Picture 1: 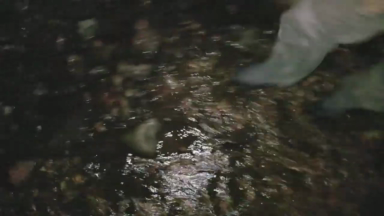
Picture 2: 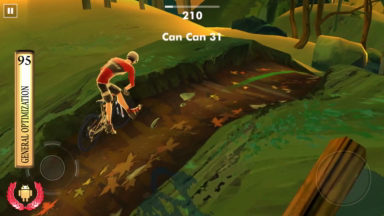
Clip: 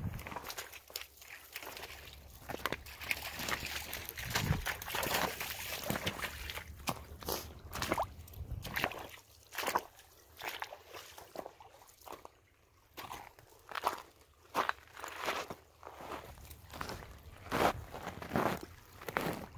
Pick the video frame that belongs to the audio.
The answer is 1